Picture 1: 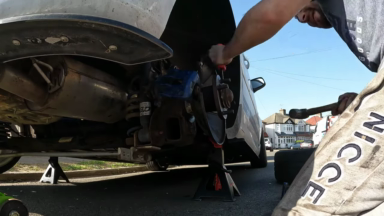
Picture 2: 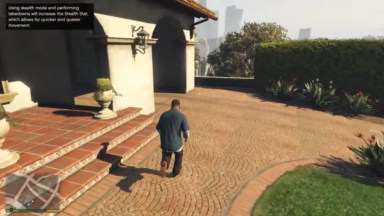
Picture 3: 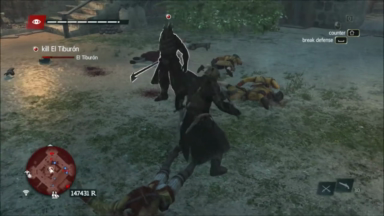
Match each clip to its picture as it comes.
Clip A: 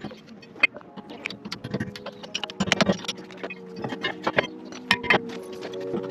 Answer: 1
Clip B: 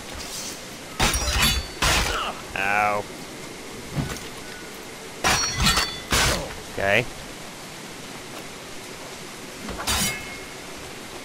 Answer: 3